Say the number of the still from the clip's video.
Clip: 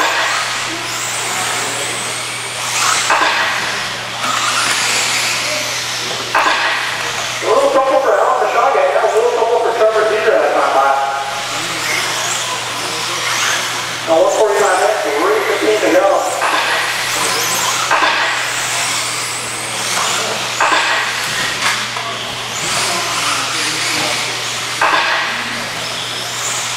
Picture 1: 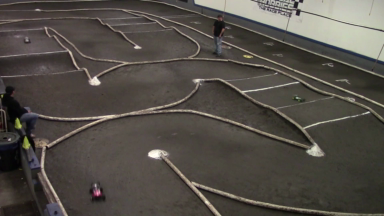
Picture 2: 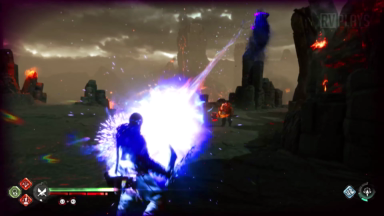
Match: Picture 1